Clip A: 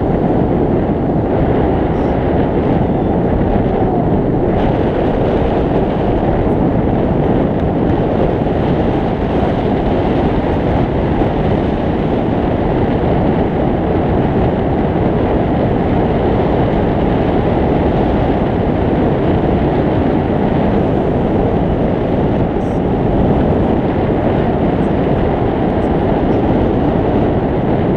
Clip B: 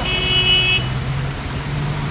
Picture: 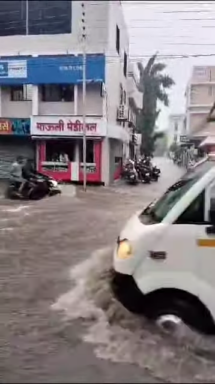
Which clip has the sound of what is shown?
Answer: B